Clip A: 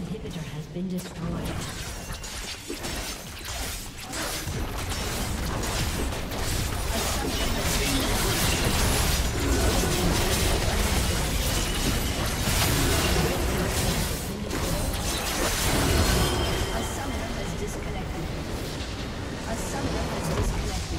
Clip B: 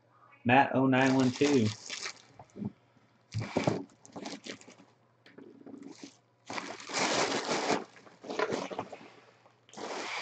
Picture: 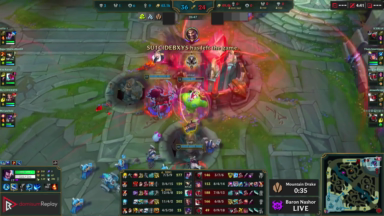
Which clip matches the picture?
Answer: A